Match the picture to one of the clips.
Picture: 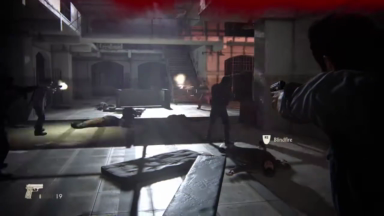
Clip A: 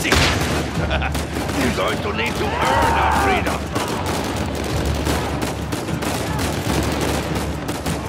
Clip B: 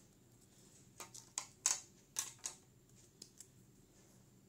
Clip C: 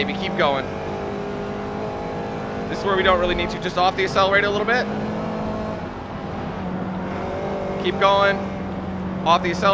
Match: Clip A